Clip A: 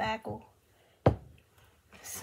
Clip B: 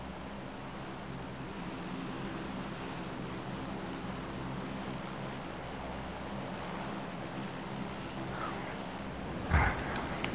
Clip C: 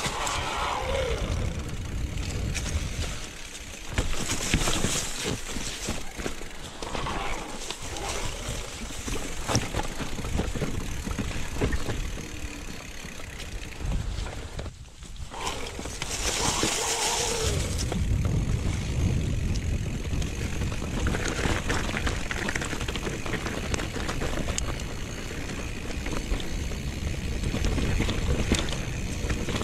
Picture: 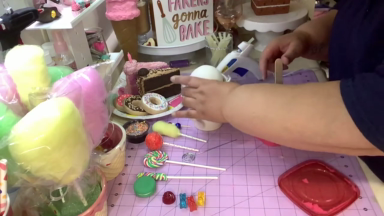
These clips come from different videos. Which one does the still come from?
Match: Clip A